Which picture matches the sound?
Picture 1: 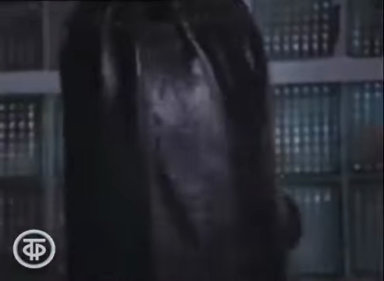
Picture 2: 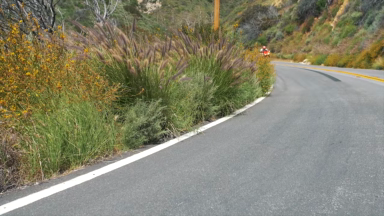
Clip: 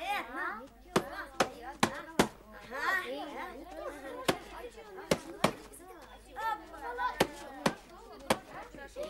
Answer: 1